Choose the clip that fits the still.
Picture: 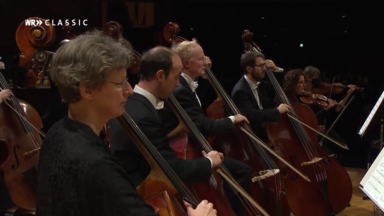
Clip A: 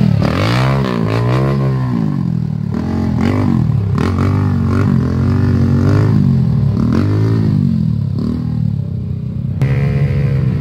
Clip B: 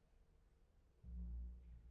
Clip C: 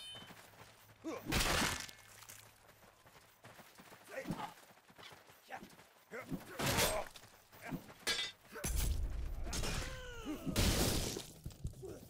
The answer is B